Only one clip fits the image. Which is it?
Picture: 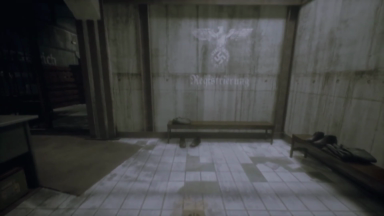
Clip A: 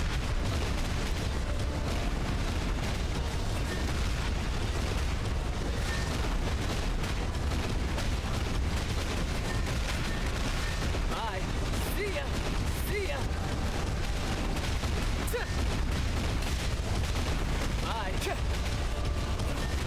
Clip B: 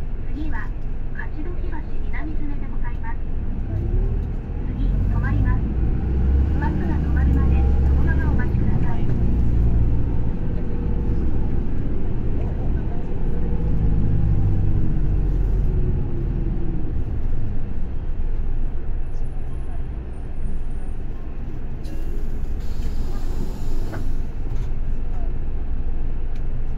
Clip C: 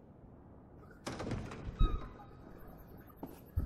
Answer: C